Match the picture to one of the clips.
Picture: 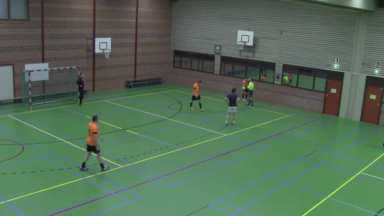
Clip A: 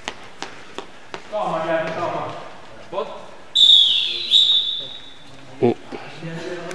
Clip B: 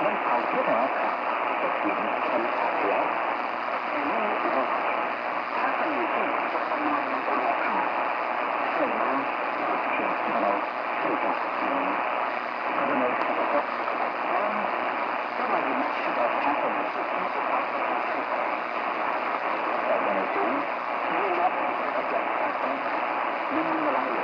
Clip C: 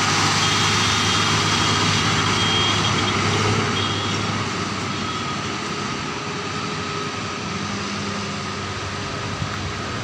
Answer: A